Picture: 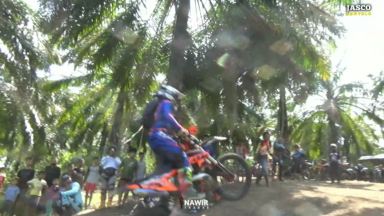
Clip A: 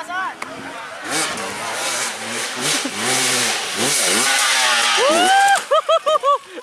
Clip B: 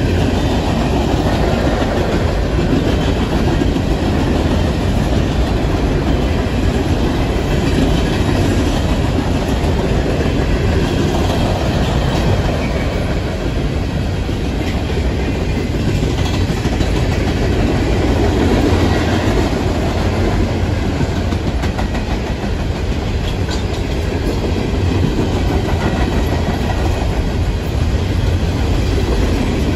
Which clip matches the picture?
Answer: A